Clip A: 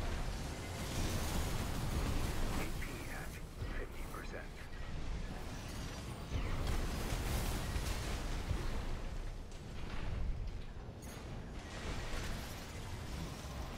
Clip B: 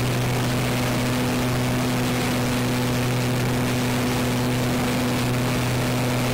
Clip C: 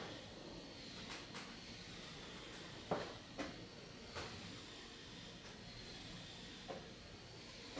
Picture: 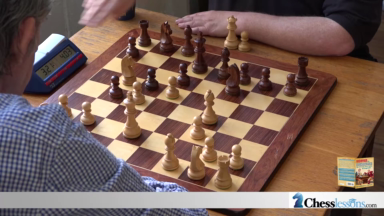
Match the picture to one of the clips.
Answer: C